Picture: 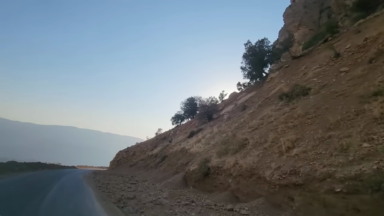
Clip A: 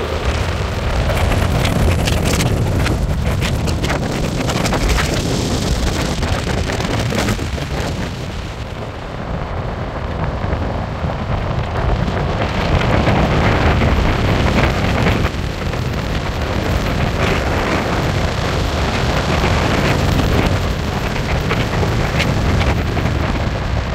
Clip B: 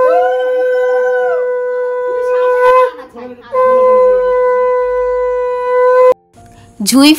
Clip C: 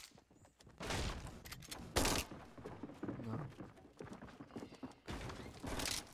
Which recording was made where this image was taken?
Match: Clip A